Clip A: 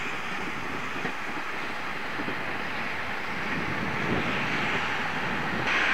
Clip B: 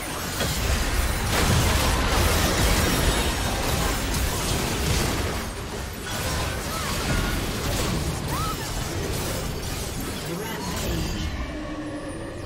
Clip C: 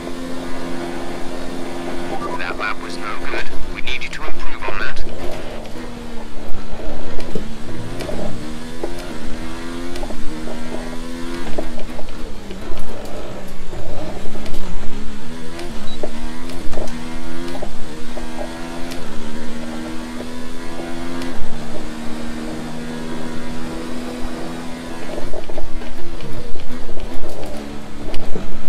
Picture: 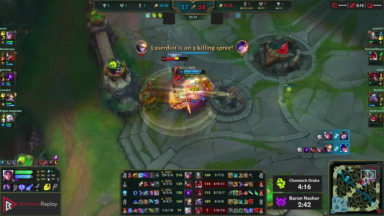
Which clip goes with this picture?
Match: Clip B